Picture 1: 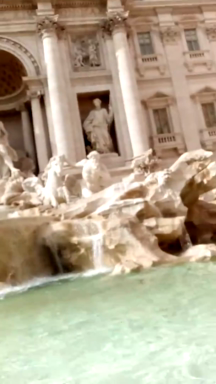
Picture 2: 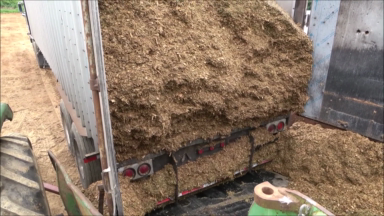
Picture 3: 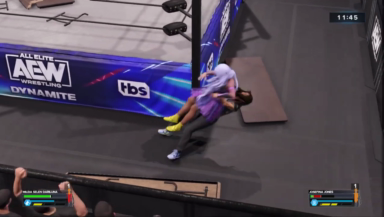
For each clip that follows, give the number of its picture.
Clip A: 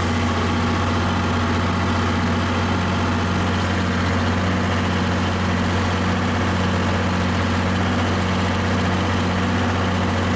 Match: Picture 2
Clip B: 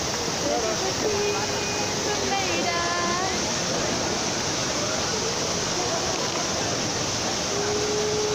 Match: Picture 1